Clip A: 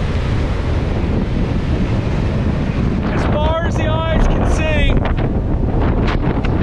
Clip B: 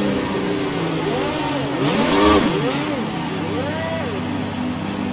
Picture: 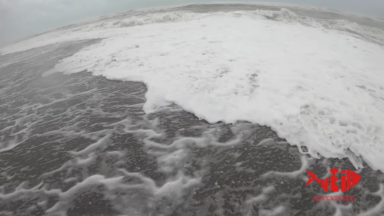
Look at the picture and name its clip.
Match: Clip A